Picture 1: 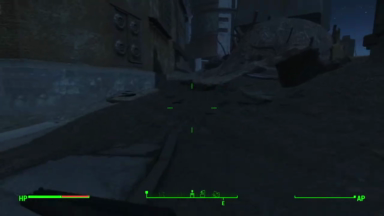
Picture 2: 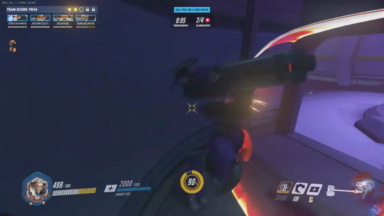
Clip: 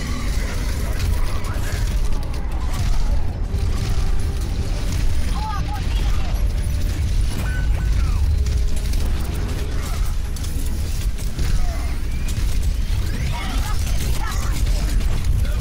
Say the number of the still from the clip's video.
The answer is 2